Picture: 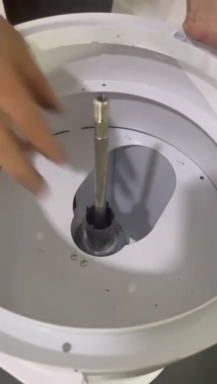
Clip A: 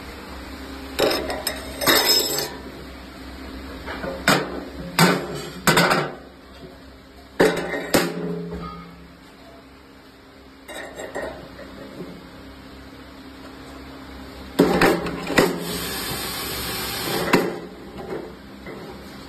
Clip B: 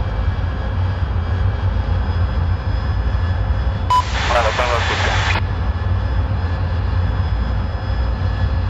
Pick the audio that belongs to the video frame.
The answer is A